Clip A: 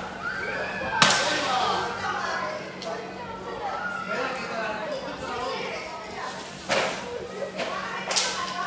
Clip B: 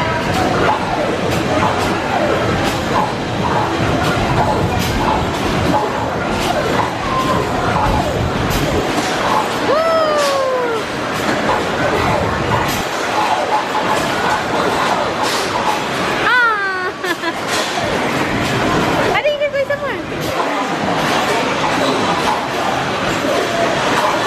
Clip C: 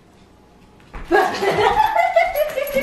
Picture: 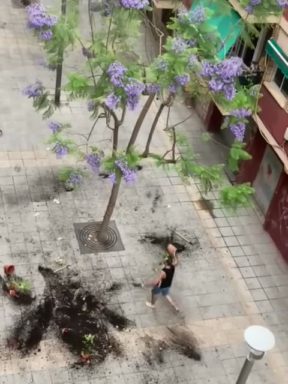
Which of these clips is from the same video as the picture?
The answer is A